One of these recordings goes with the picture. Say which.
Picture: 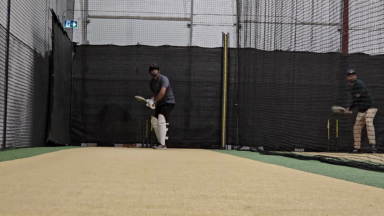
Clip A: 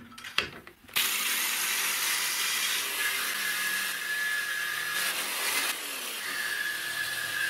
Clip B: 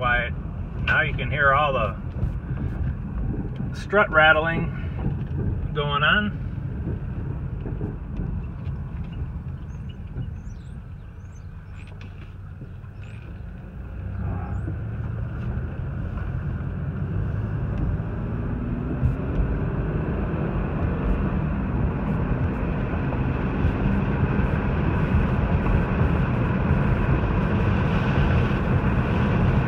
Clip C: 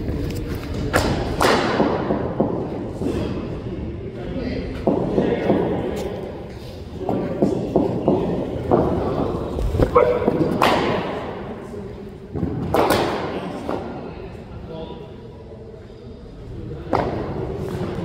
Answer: C